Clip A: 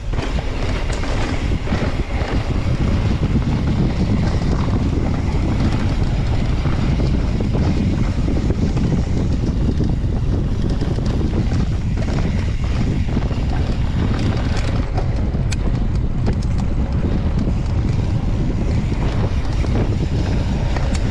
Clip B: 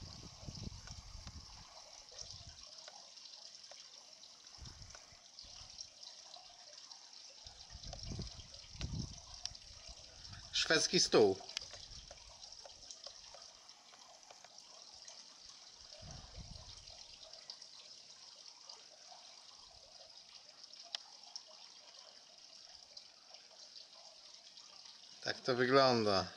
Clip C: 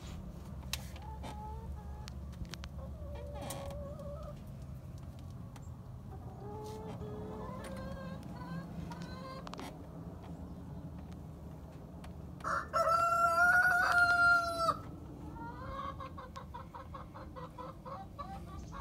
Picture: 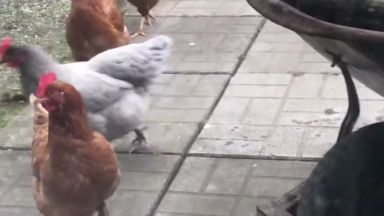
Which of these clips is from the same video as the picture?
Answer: C